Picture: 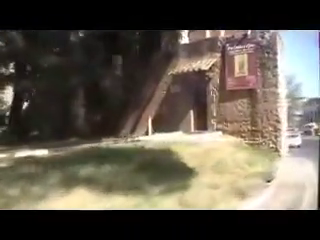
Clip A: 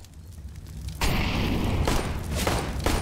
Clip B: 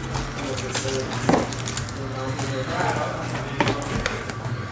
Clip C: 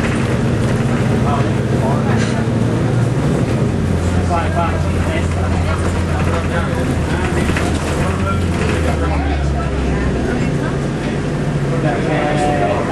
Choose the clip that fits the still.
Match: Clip C